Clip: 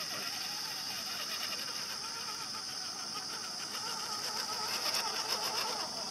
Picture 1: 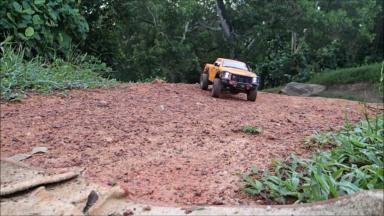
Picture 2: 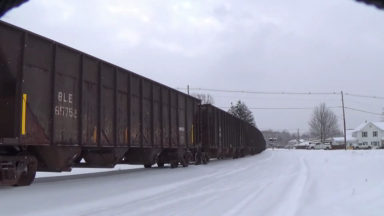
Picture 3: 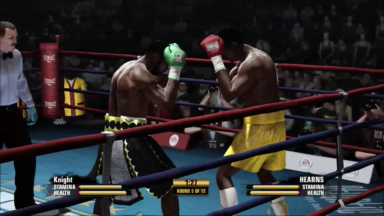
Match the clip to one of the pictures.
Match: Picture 1